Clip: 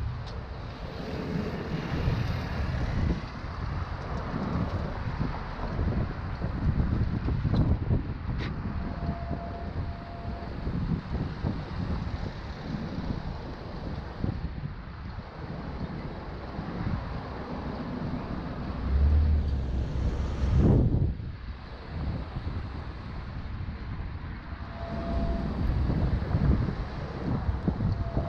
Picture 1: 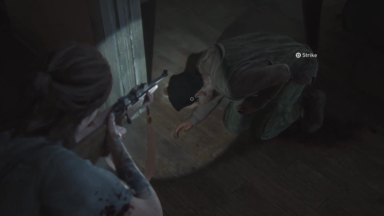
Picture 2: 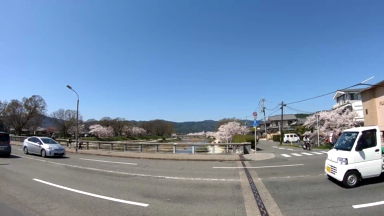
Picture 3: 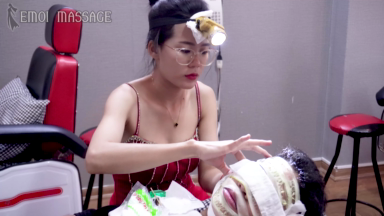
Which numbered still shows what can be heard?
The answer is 2